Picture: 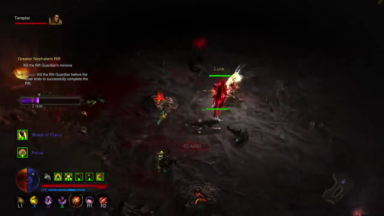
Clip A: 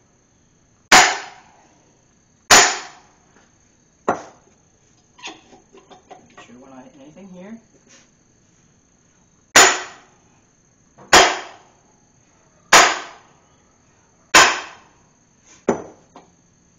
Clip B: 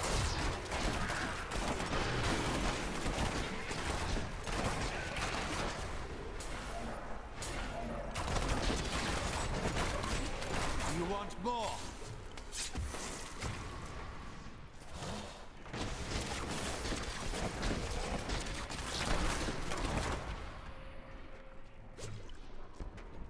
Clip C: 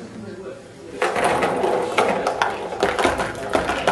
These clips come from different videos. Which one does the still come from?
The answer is B